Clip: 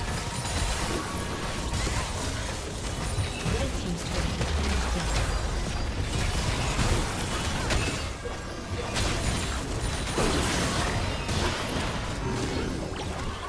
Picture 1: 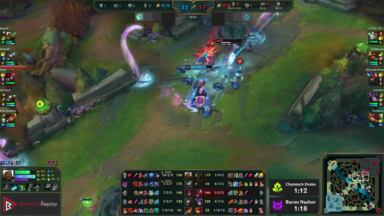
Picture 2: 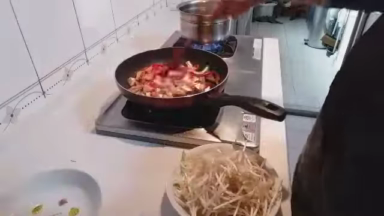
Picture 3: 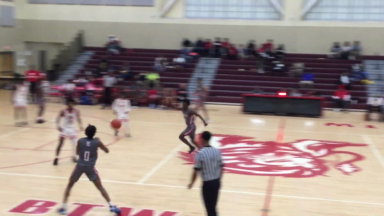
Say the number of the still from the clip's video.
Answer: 1